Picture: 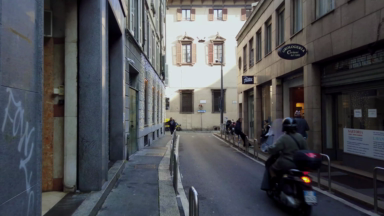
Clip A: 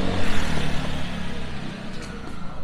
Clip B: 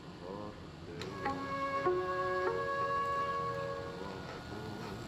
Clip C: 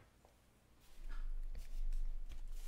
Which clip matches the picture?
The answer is A